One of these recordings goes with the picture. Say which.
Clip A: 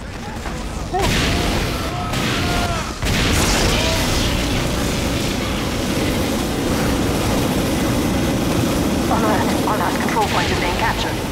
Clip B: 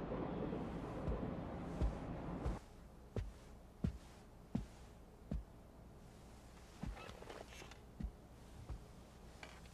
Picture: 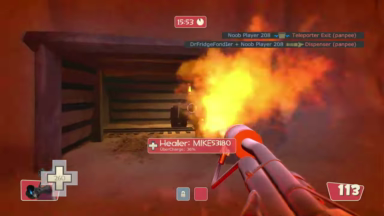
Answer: A